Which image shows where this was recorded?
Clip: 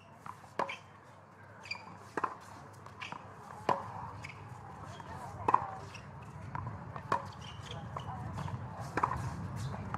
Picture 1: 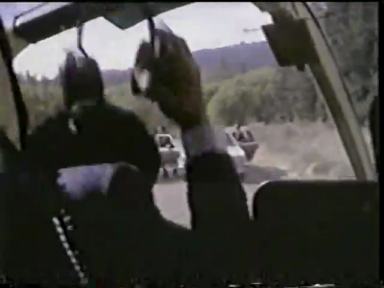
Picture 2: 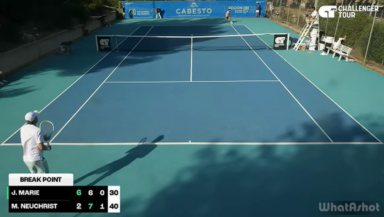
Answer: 2